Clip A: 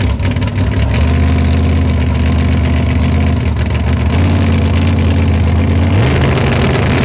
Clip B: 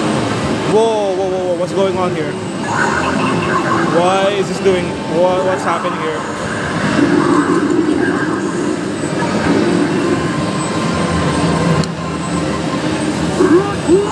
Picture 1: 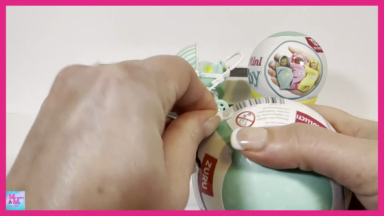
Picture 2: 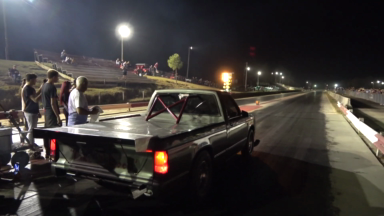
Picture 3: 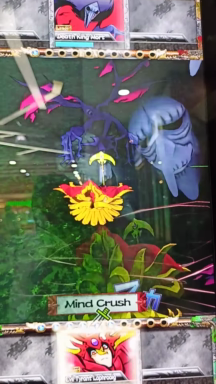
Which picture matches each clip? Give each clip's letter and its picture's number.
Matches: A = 2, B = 3